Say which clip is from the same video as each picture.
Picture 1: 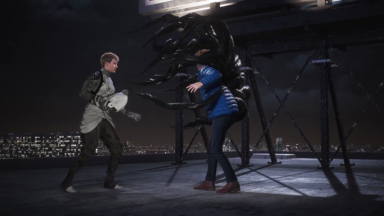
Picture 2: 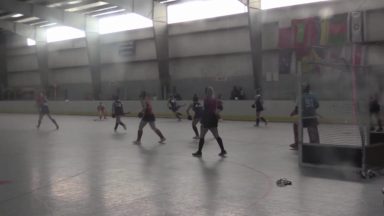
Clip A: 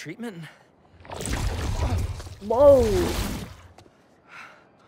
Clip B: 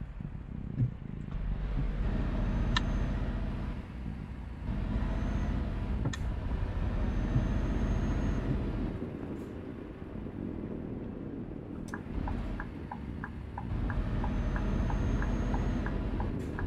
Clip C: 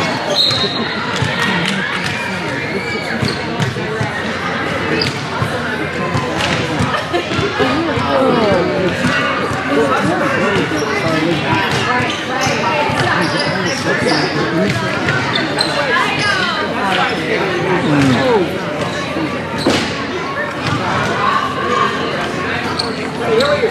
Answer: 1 A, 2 C